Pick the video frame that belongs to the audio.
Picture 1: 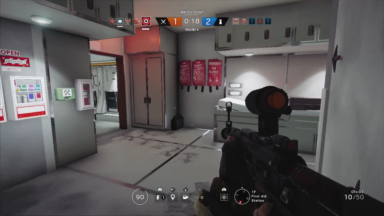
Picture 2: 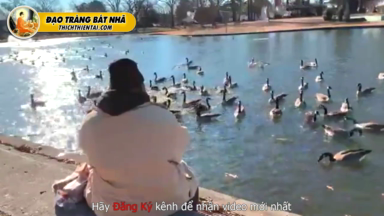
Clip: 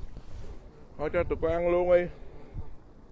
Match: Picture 2